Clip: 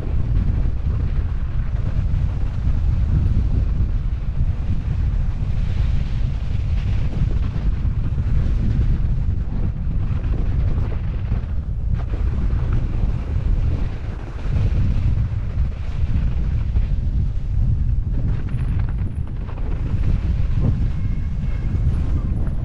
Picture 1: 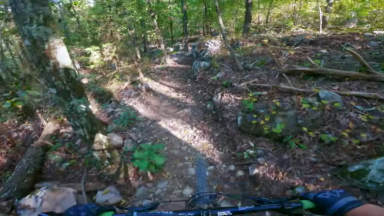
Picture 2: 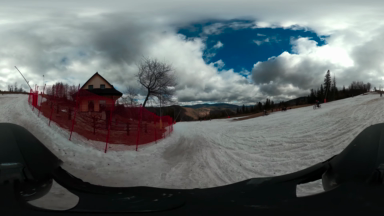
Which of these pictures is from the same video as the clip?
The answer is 2